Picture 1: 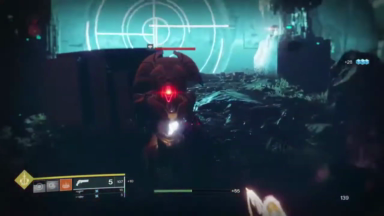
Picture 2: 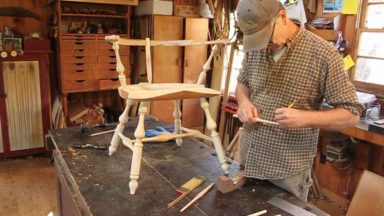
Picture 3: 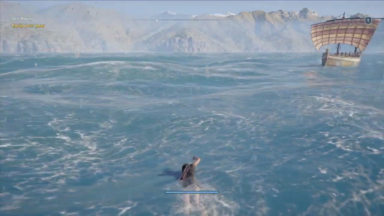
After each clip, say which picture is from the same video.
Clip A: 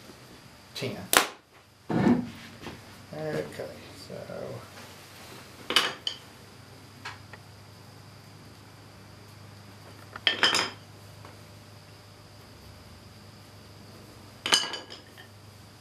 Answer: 2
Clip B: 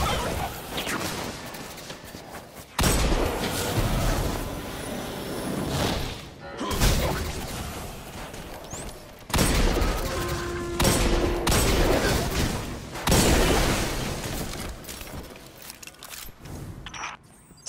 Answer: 1